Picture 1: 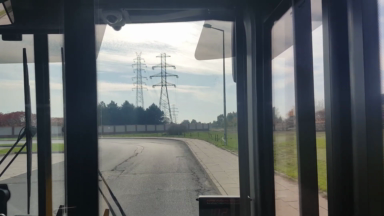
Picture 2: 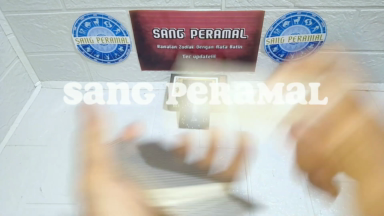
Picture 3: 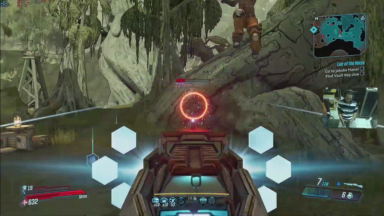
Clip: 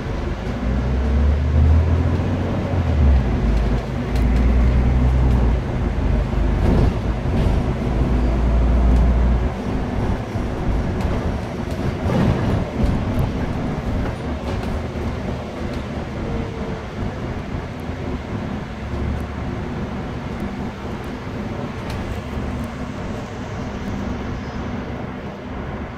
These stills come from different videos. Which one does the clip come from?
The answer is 1